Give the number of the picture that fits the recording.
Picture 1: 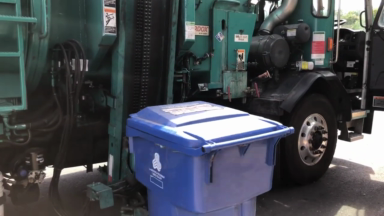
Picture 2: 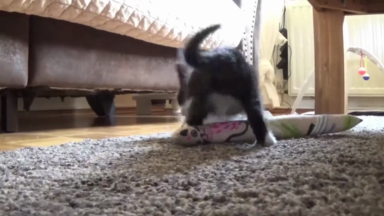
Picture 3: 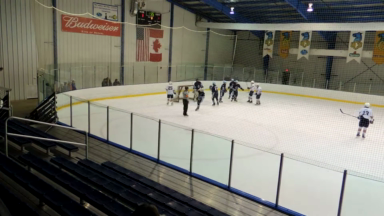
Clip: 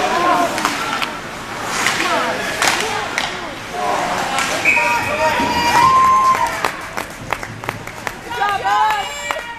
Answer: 3